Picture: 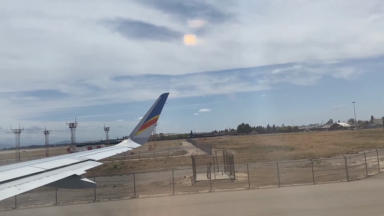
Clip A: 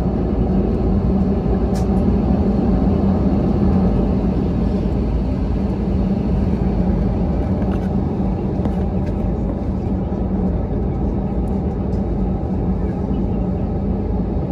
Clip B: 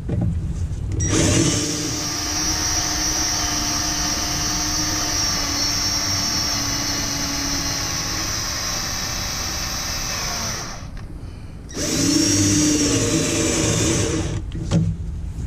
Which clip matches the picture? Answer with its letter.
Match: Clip A